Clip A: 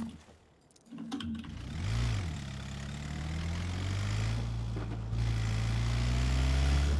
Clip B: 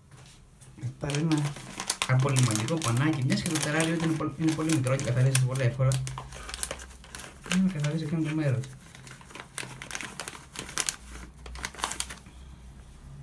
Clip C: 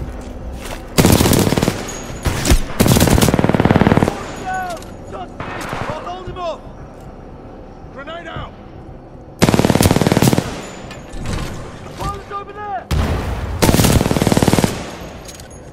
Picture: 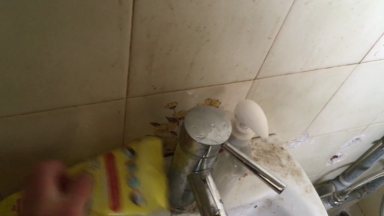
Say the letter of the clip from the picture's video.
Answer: B